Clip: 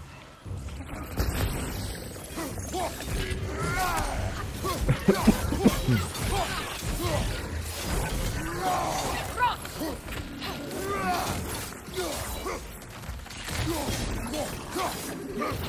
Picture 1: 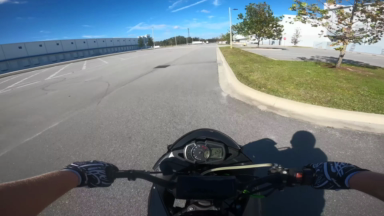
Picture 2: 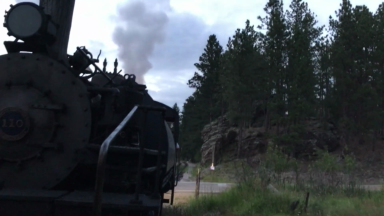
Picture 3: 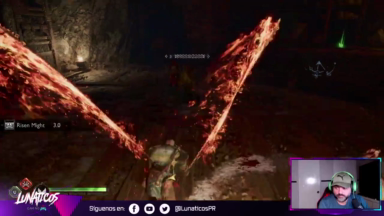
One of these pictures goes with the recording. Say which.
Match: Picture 3